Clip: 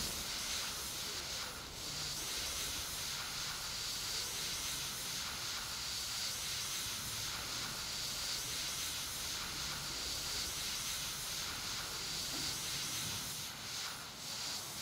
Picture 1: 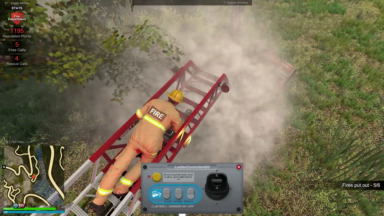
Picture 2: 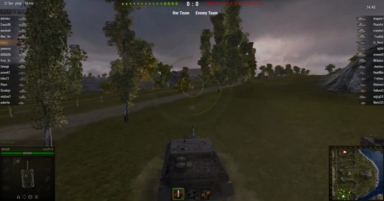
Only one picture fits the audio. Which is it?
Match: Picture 1